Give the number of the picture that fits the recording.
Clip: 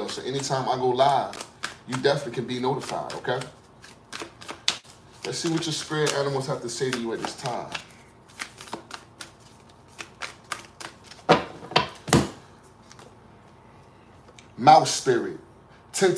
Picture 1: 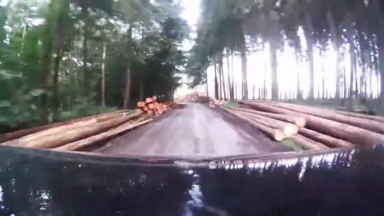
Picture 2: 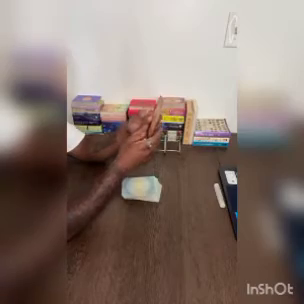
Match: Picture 2